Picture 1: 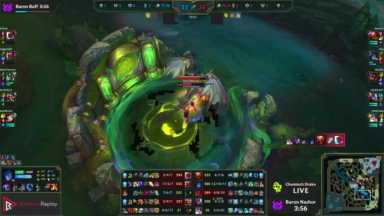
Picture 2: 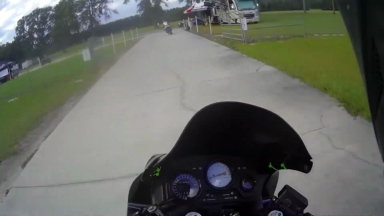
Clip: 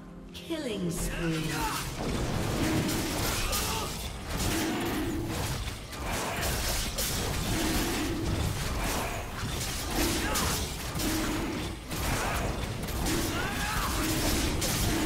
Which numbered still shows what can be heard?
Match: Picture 1